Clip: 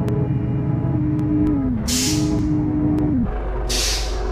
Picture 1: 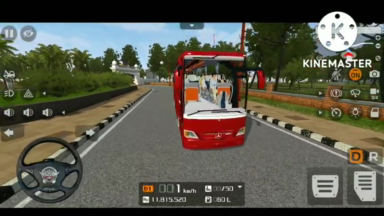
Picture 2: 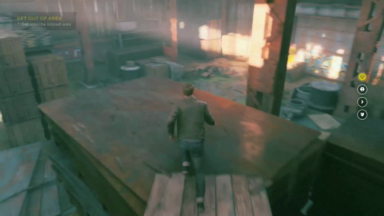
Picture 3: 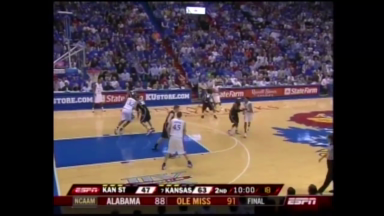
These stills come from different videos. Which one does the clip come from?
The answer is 1